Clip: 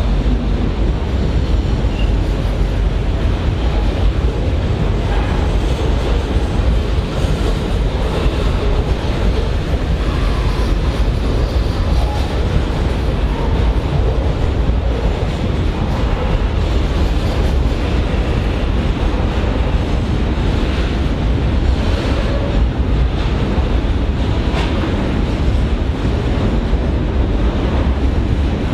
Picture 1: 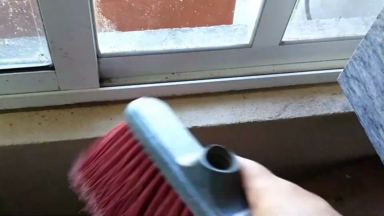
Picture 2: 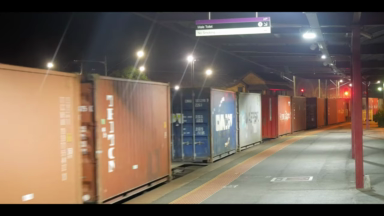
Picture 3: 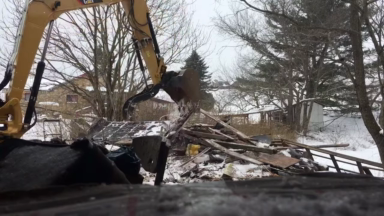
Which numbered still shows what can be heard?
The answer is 2